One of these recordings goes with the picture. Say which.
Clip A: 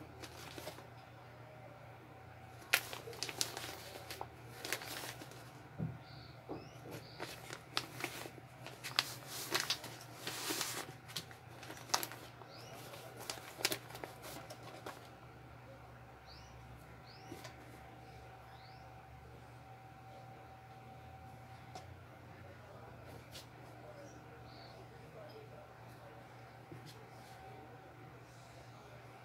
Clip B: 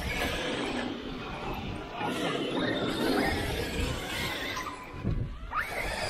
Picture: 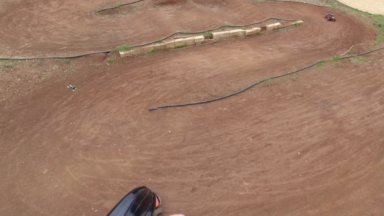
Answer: B